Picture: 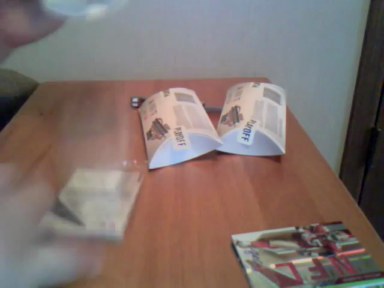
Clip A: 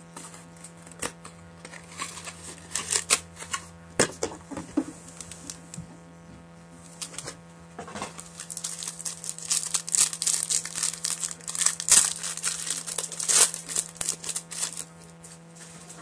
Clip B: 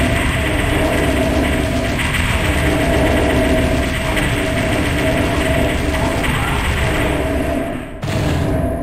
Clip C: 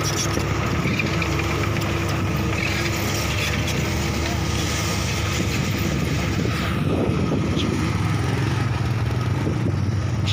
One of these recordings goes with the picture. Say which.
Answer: A